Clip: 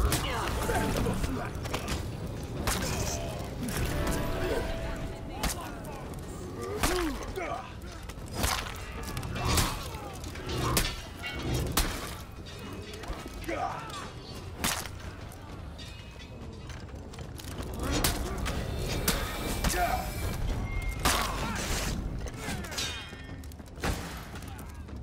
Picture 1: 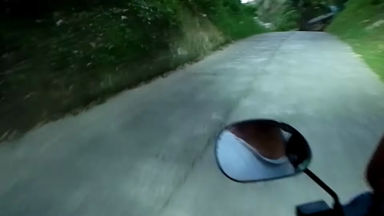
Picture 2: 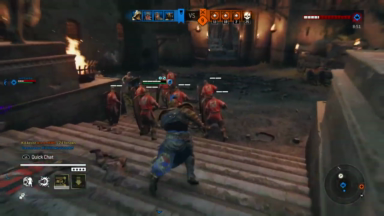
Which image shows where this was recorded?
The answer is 2